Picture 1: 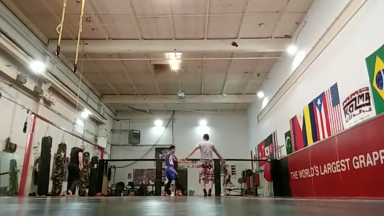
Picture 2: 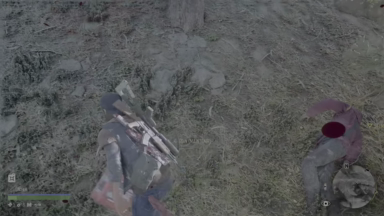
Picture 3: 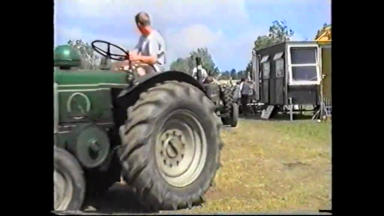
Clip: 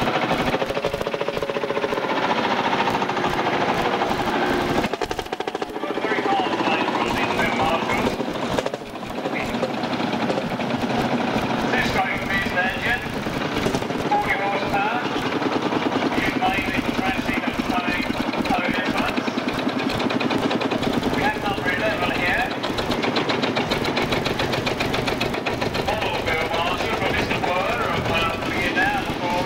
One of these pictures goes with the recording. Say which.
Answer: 3